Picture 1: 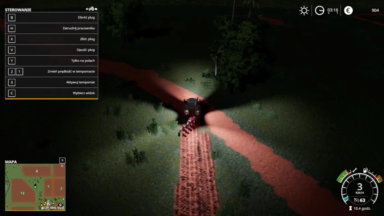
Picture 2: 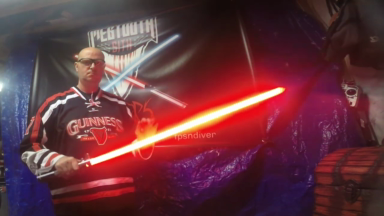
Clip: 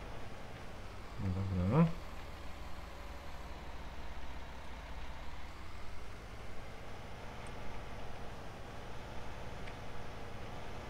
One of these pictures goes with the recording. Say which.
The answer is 1